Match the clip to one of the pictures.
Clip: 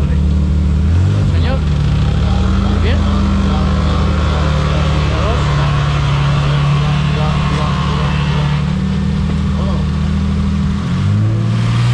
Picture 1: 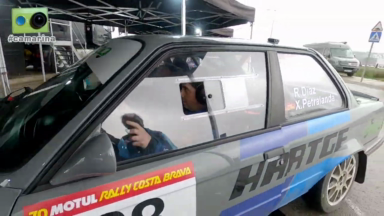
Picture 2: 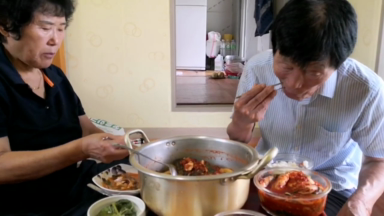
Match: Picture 1